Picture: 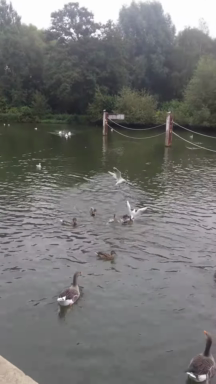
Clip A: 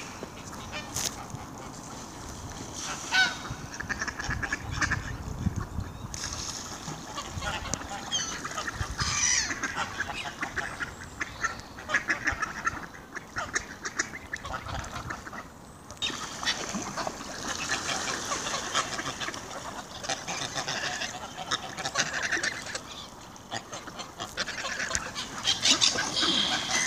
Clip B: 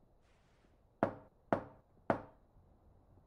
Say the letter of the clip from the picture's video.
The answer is A